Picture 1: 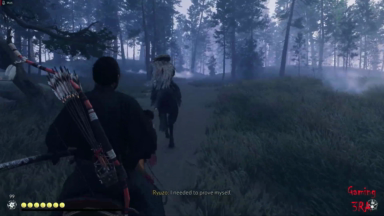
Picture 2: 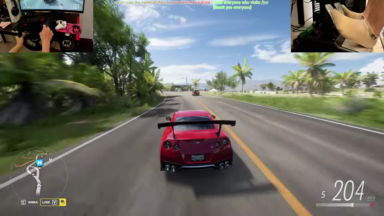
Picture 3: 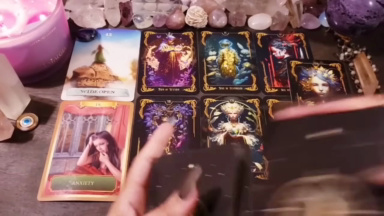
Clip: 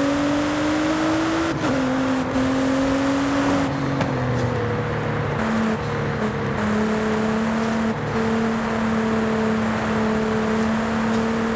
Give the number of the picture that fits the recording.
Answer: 2